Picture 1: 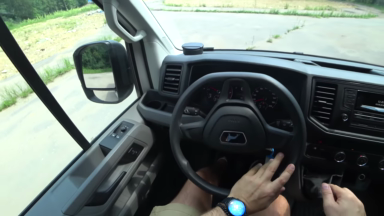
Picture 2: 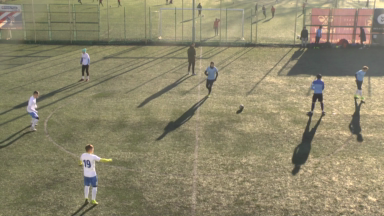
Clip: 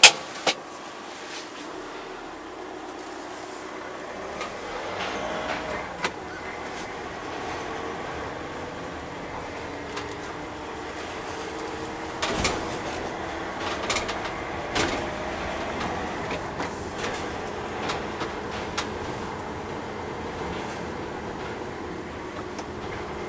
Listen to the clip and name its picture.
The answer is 1